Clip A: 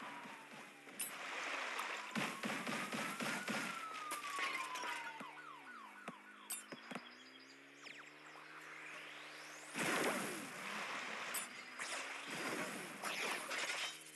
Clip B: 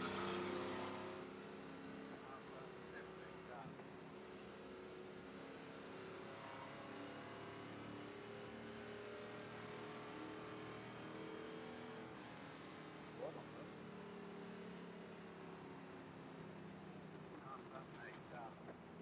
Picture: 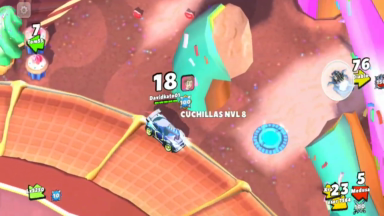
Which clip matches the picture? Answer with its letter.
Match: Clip A